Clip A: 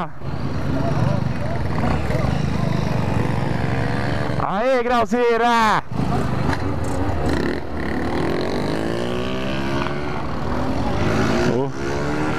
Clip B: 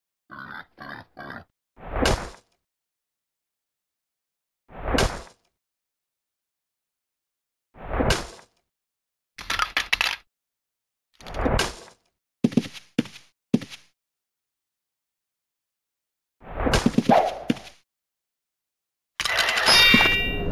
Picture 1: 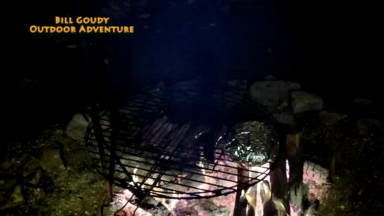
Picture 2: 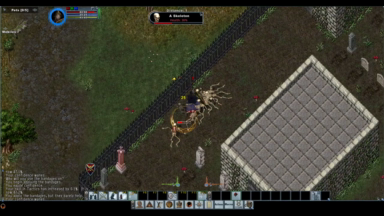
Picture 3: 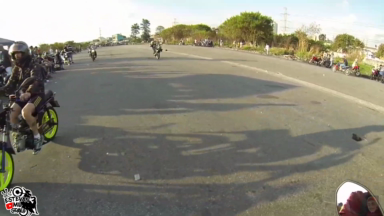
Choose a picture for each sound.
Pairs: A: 3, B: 2